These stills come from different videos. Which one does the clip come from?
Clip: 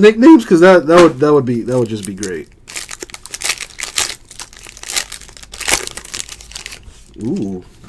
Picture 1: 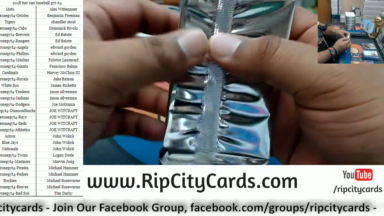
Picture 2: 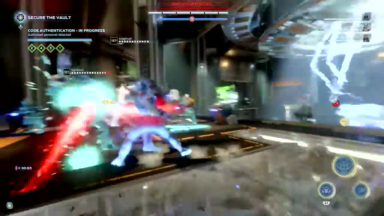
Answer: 1